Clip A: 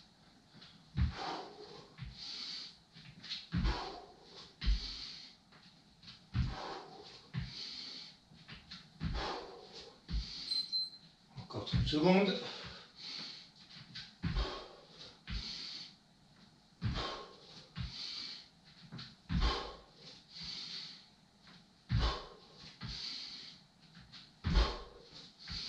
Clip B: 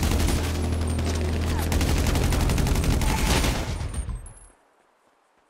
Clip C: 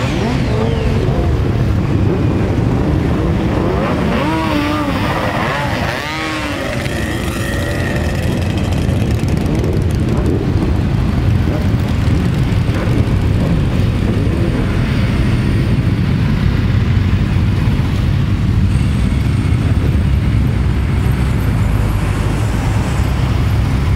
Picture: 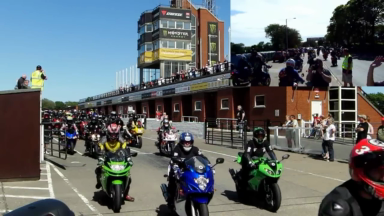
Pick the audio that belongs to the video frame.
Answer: C